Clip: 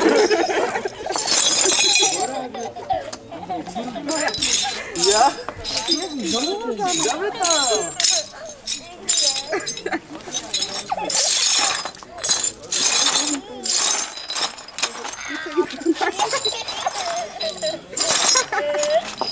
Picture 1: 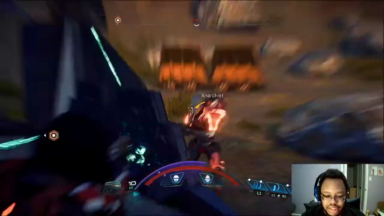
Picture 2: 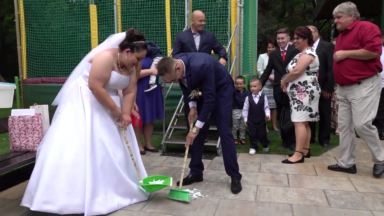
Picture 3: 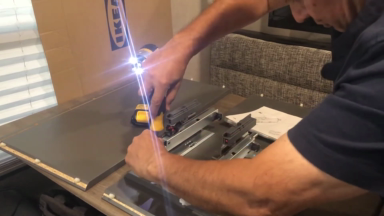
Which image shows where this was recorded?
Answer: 2